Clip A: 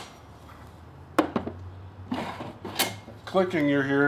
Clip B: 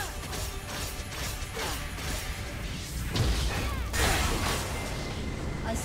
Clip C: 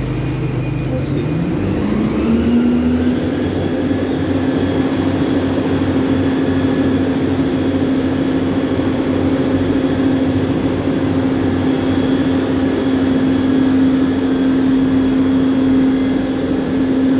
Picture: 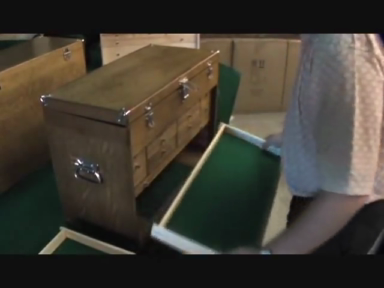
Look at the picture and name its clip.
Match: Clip A